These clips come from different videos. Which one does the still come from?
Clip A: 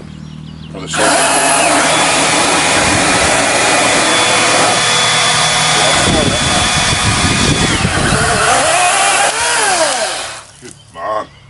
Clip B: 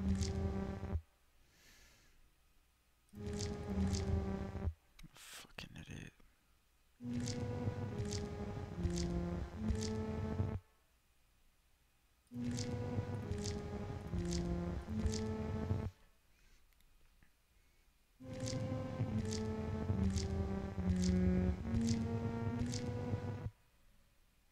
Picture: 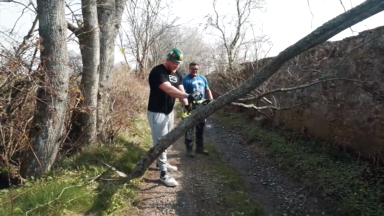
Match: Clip A